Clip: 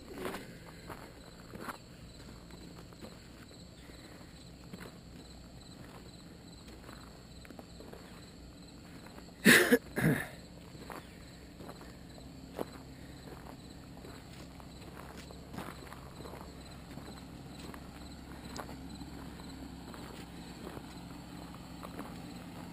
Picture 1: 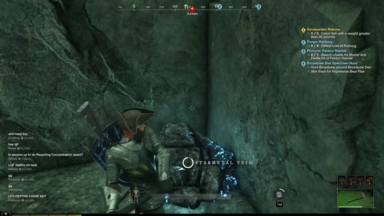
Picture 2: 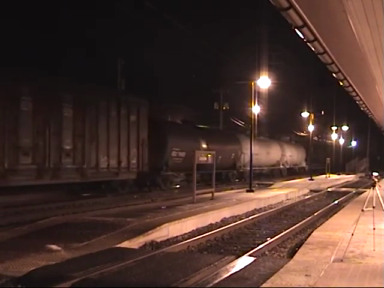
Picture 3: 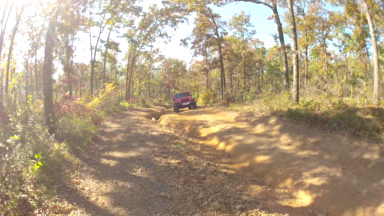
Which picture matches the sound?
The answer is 3